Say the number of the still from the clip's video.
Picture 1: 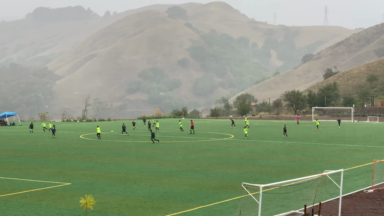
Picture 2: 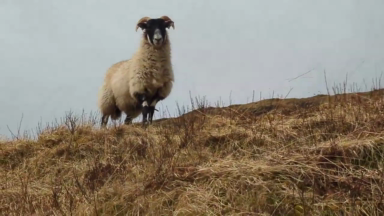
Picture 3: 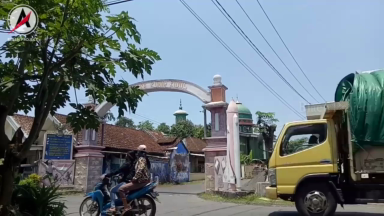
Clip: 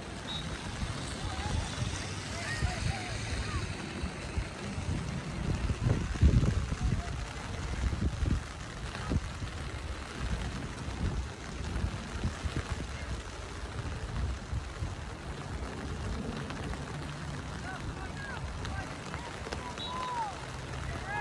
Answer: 1